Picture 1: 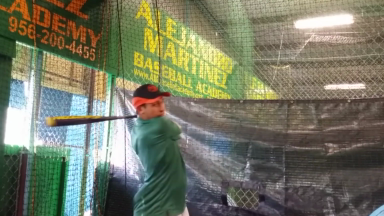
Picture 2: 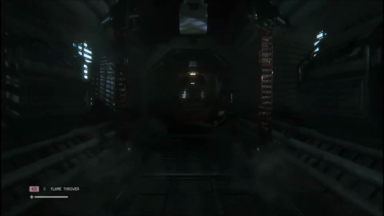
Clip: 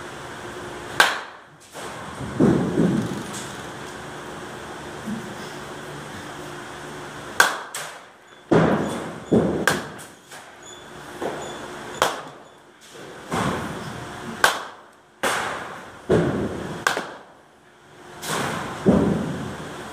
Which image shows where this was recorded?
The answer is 1